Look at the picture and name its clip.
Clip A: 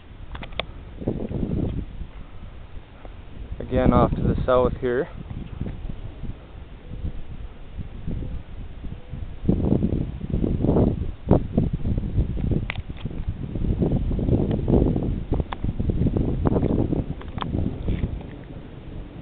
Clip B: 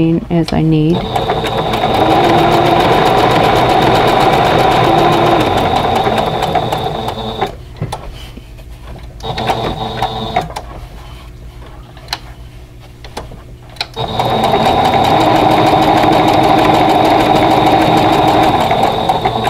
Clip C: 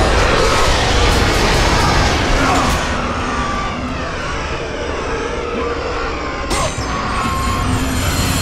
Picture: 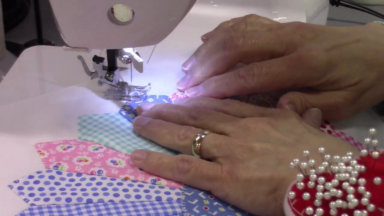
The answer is B